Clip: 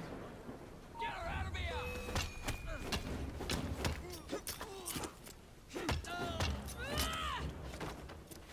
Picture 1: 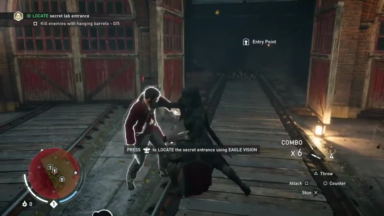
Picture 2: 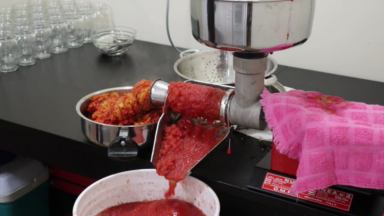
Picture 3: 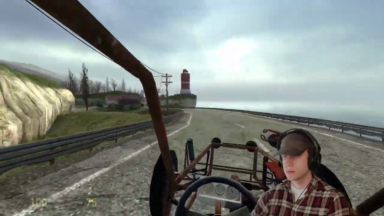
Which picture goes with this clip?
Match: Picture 1